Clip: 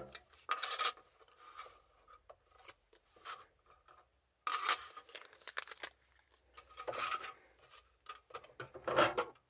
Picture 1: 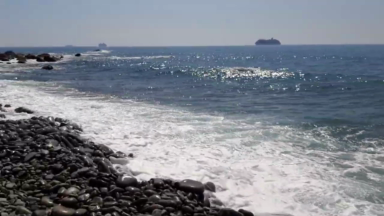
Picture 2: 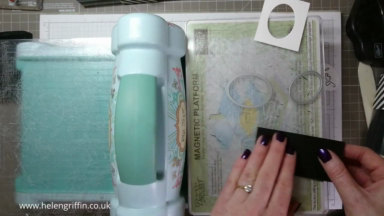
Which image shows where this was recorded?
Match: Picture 2